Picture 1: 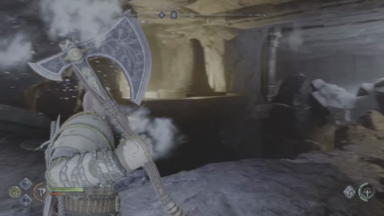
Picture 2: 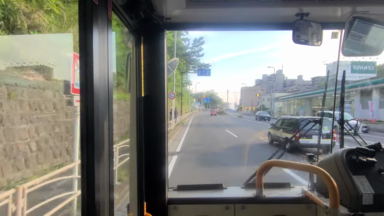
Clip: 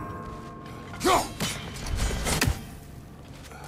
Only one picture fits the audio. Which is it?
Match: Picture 1